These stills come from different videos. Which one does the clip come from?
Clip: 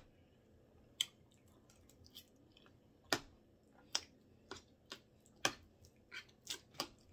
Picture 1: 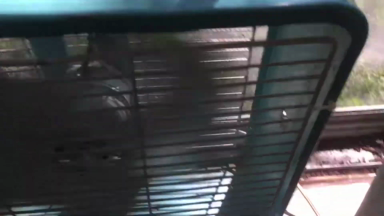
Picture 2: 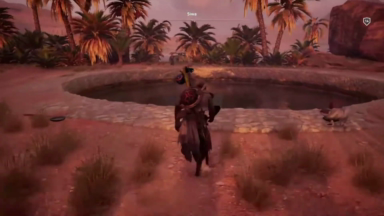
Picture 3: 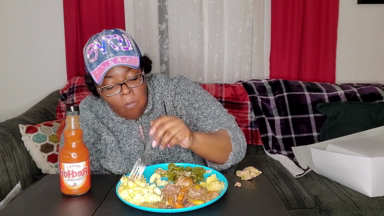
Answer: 3